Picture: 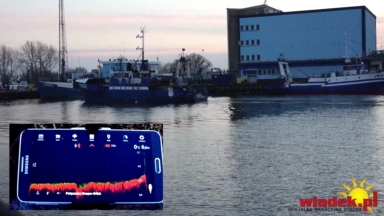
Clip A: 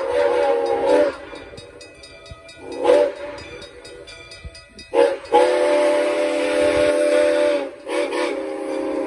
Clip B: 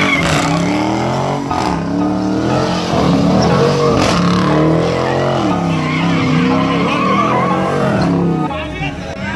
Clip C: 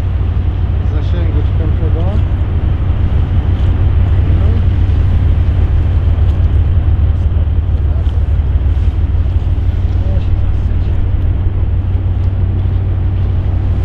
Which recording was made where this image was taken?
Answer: C